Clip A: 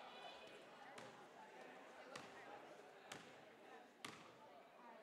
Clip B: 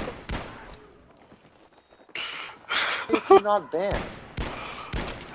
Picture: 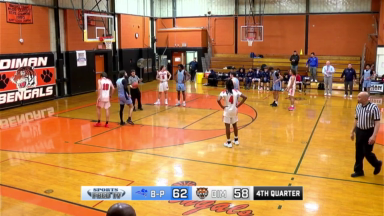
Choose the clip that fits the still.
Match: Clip A